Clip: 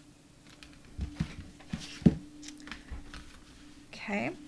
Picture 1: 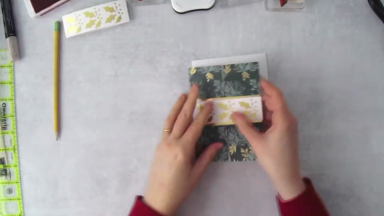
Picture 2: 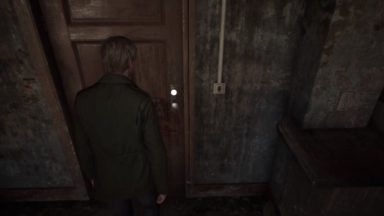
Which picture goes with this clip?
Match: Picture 1